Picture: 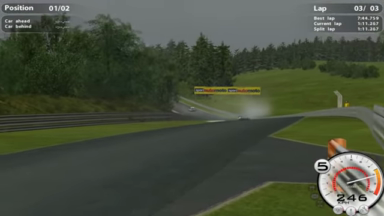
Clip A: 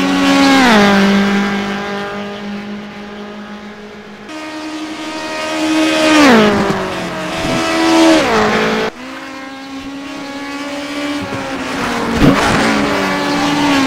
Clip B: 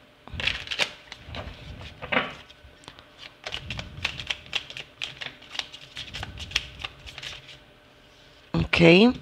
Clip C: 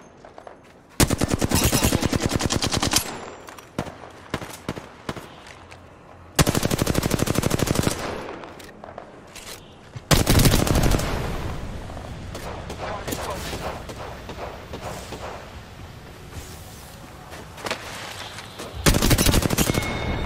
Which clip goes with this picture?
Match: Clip A